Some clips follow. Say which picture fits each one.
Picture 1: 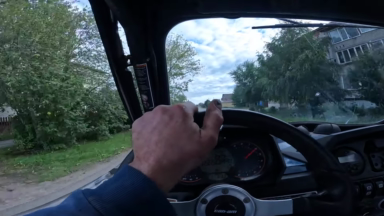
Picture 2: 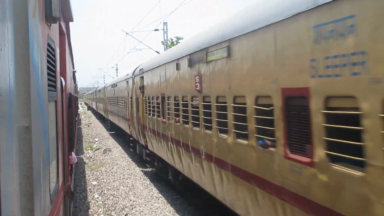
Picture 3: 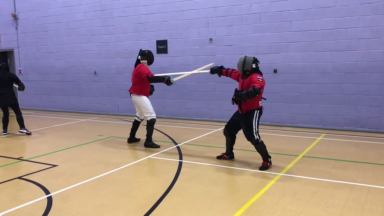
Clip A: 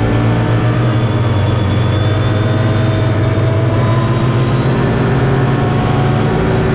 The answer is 1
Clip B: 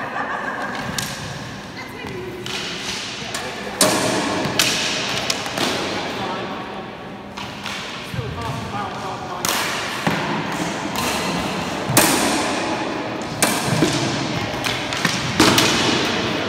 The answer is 3